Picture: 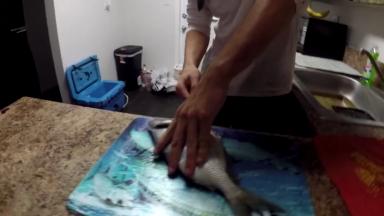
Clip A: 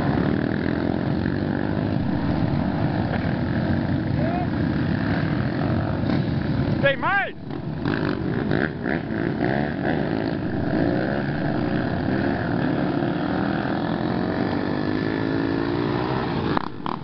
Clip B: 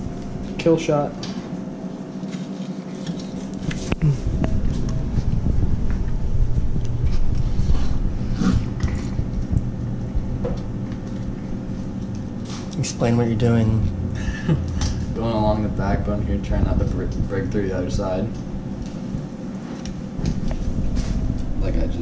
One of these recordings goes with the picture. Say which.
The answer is B